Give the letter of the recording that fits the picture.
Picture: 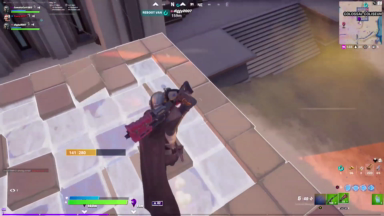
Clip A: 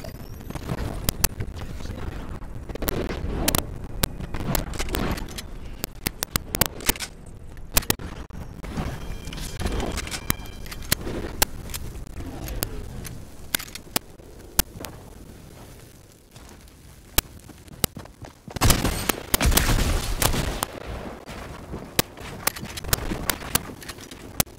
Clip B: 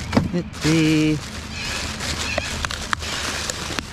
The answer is A